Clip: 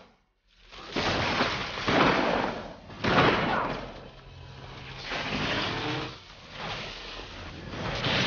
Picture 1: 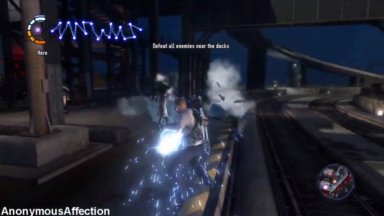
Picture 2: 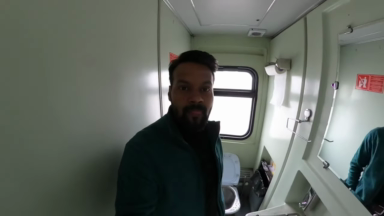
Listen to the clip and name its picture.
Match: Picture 1